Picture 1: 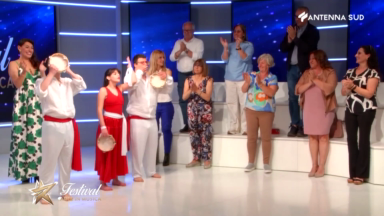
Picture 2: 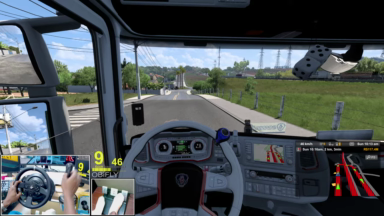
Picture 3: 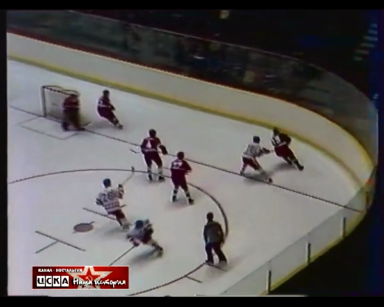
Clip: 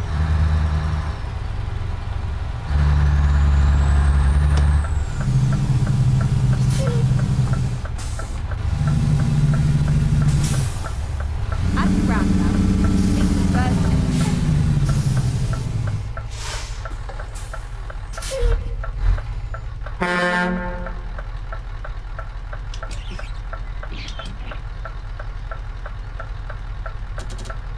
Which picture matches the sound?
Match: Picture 2